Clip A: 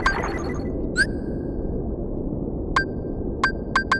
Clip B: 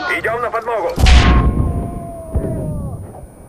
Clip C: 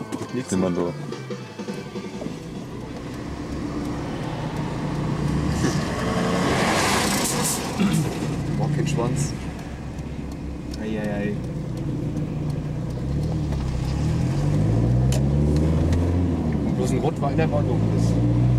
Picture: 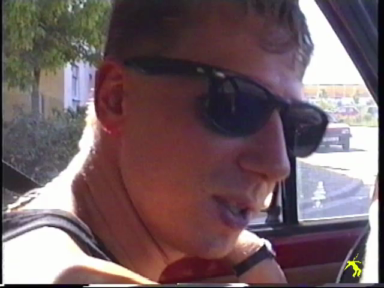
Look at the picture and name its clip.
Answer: C